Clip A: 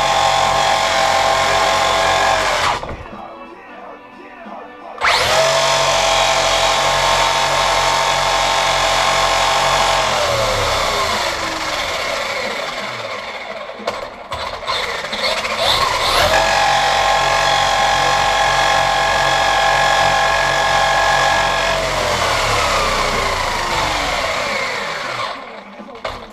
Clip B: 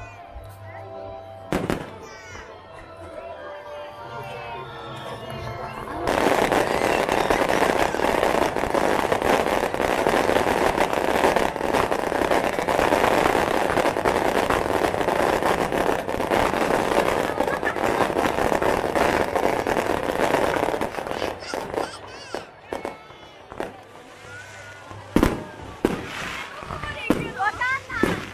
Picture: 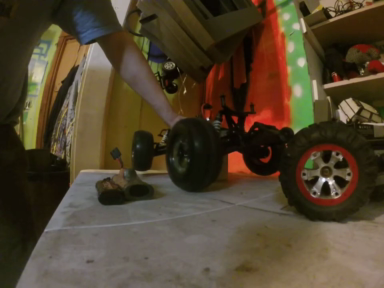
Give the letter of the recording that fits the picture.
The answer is A